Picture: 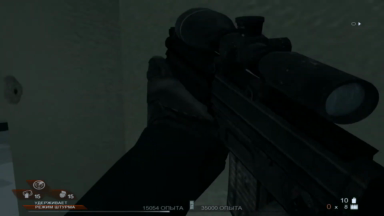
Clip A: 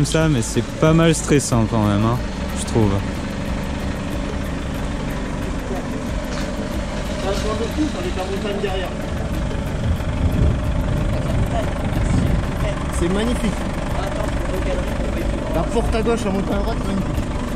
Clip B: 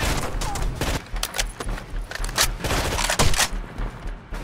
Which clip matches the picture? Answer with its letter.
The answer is B